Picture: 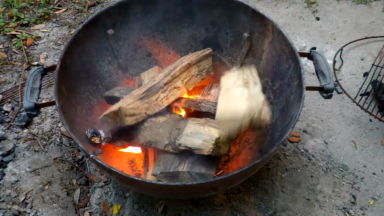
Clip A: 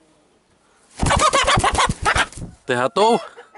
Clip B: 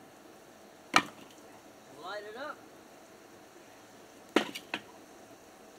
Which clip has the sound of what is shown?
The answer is B